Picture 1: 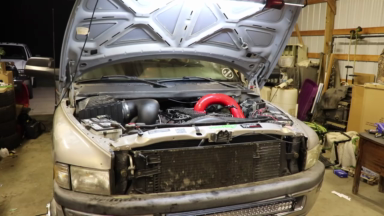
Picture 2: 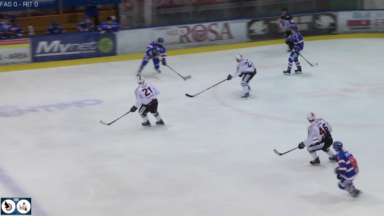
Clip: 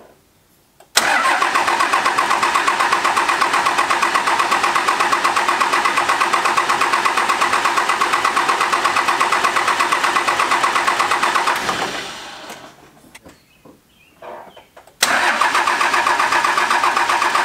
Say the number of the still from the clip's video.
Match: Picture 1